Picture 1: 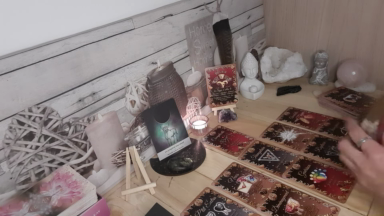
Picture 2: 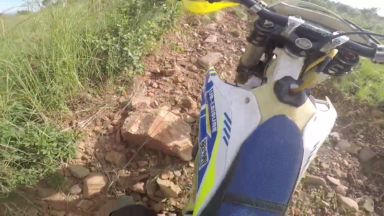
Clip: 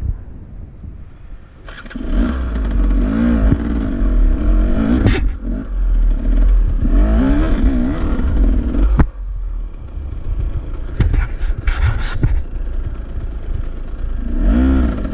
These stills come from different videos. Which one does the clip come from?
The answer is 2